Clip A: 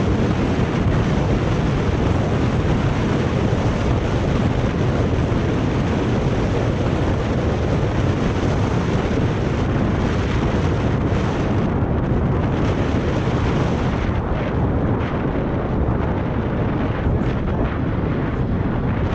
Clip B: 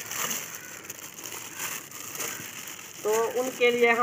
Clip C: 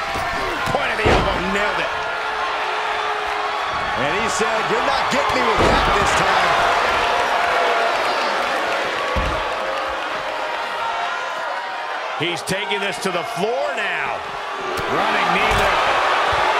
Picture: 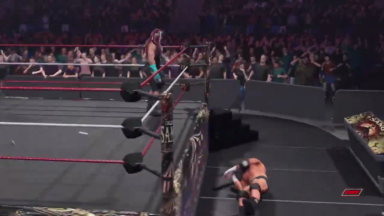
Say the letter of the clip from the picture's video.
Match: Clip C